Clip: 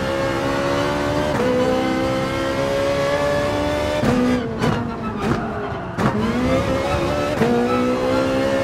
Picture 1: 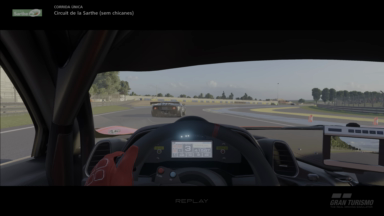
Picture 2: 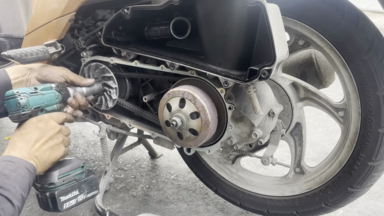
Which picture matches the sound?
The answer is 1